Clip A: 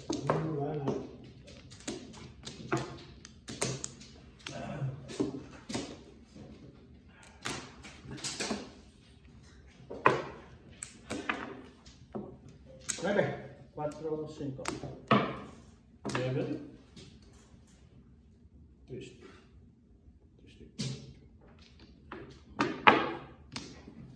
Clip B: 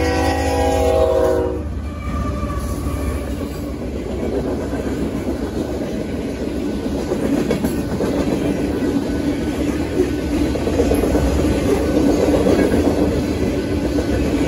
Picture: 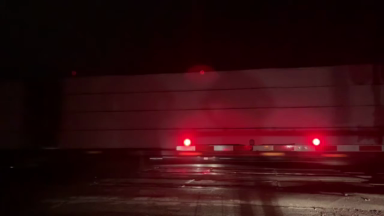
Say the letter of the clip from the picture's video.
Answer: B